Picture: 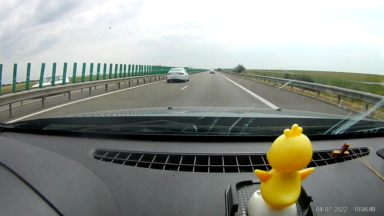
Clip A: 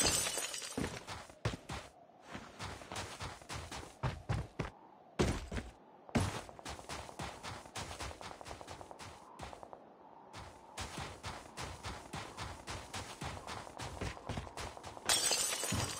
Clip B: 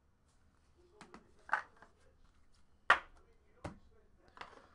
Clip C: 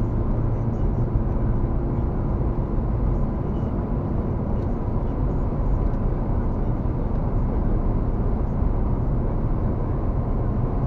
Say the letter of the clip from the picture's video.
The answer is C